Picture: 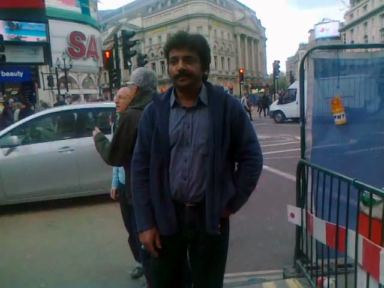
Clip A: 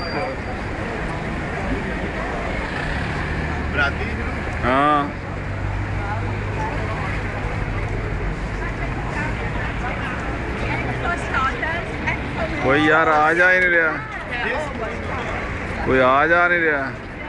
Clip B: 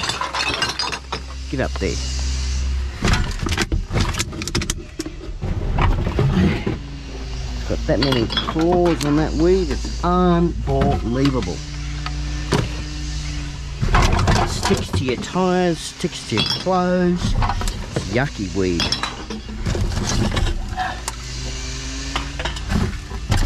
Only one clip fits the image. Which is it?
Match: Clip A